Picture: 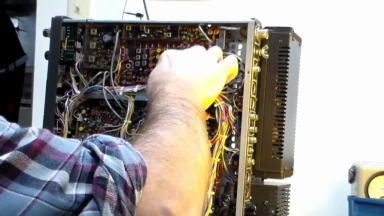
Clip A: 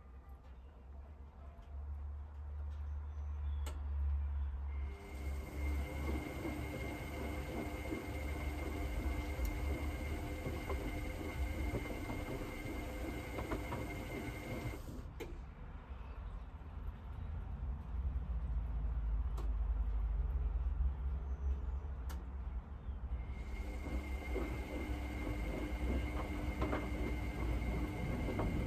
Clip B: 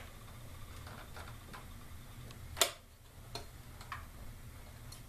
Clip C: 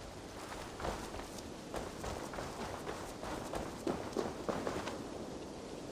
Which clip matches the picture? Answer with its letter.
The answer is B